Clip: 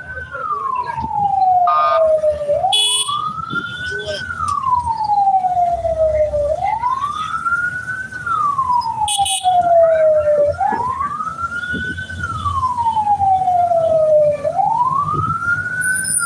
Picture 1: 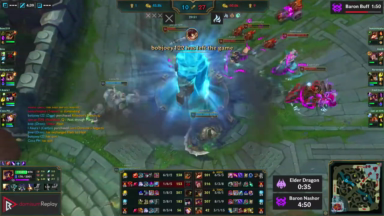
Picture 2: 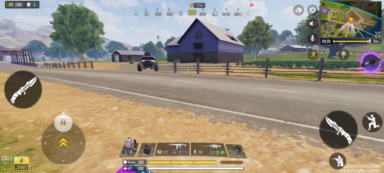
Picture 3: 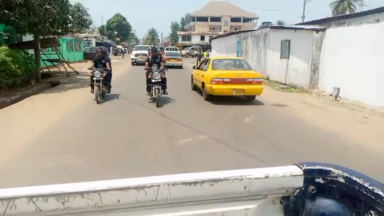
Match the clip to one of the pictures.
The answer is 3